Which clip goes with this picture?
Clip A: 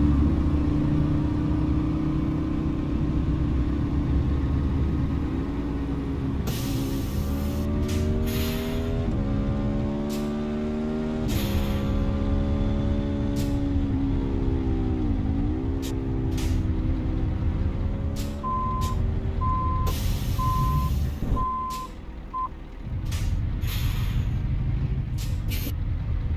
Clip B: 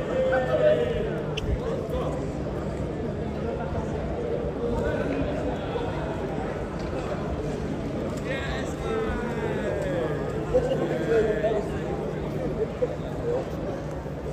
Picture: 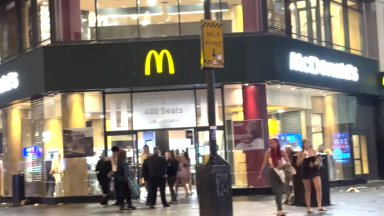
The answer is B